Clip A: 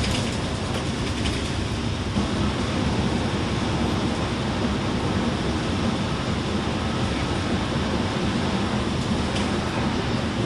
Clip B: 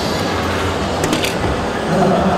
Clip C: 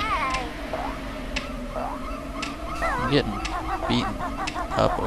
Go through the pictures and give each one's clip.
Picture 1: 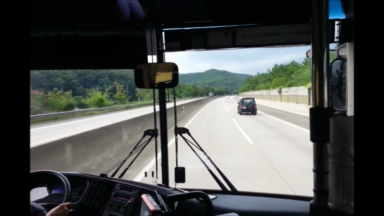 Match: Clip A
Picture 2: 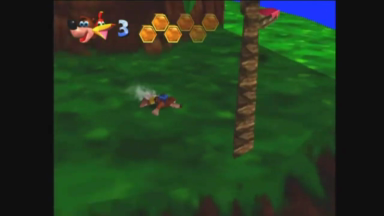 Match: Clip C